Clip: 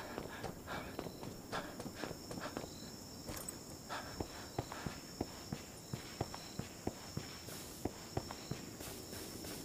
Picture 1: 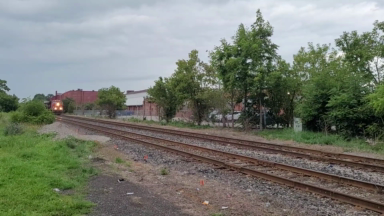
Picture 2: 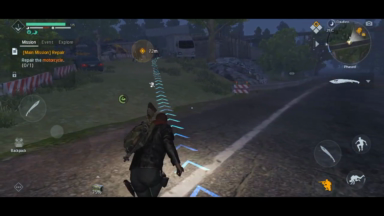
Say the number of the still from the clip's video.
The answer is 2